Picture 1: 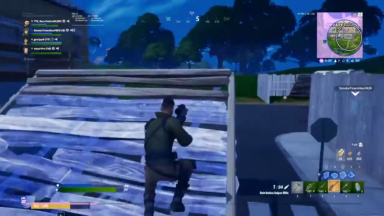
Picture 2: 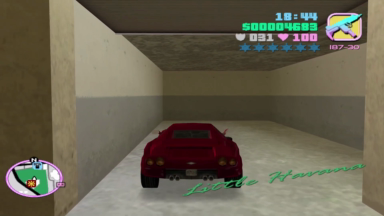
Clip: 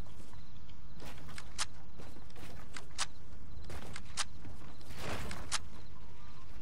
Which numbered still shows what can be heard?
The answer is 1